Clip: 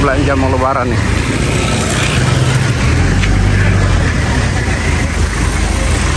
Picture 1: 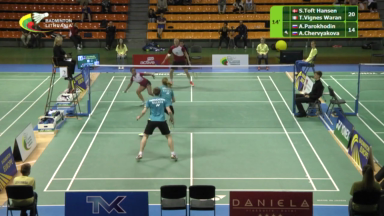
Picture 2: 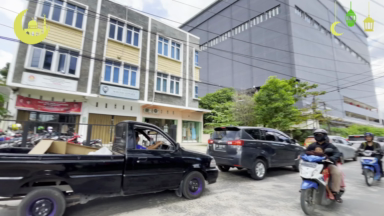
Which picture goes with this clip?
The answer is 2